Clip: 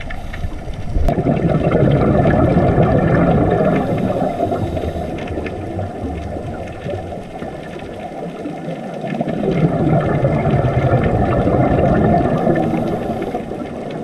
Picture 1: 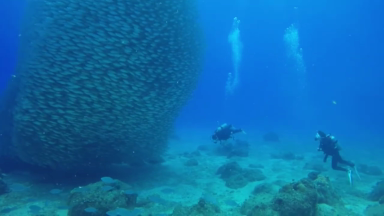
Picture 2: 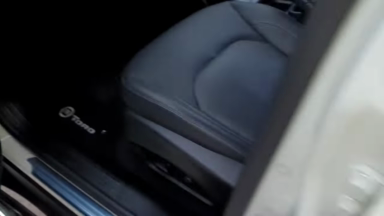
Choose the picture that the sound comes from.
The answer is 1